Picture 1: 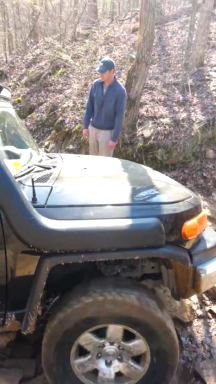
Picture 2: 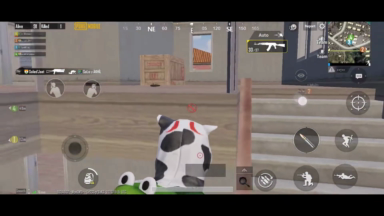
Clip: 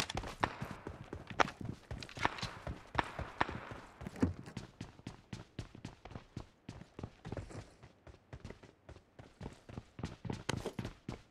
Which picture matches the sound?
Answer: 2